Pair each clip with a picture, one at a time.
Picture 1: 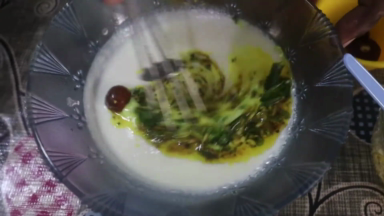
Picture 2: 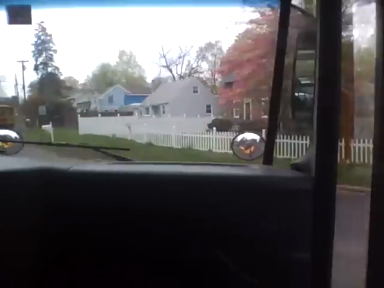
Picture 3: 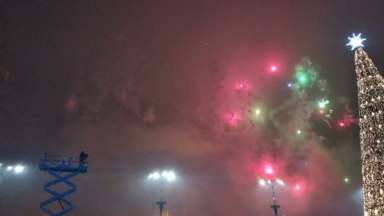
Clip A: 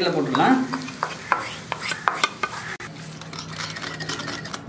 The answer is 1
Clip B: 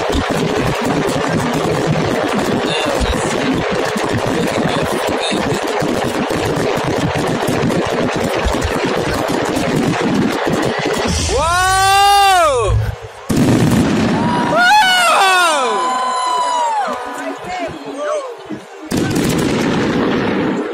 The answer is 3